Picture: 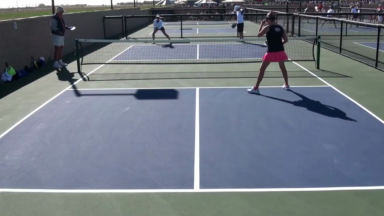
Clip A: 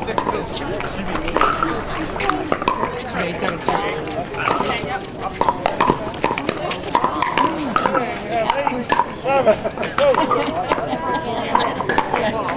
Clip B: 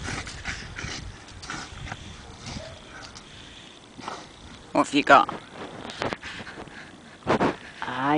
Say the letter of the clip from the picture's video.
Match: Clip A